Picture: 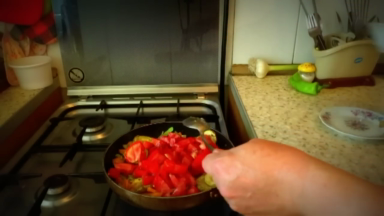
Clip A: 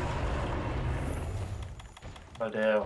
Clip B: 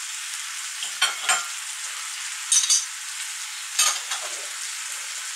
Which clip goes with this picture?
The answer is B